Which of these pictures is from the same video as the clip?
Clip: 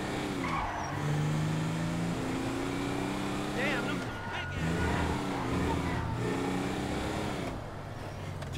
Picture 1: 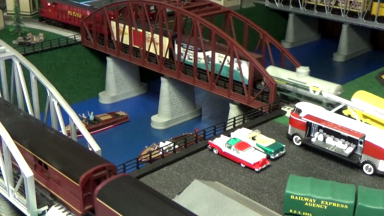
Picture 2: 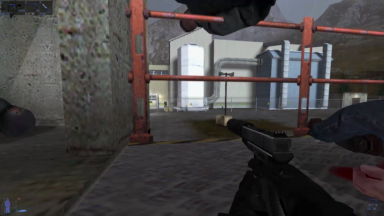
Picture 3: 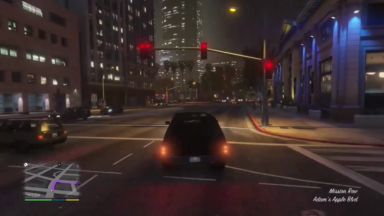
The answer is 3